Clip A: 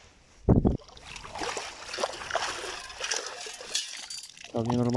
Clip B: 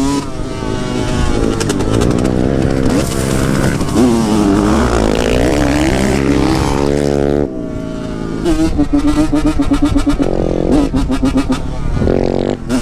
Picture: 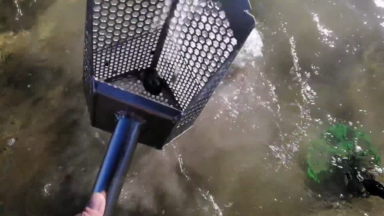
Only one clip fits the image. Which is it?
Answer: A